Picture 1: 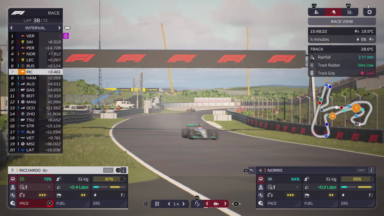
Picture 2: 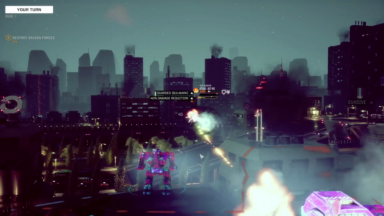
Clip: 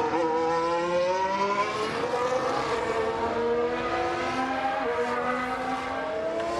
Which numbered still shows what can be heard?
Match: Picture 1